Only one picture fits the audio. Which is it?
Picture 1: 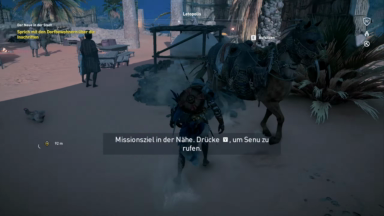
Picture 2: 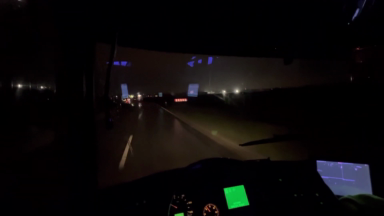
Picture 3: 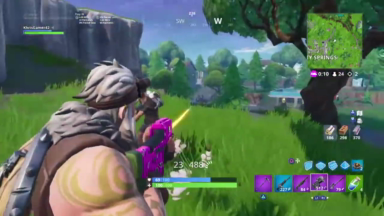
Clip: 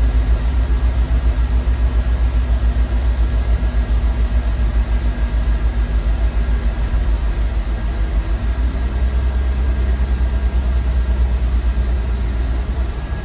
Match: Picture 2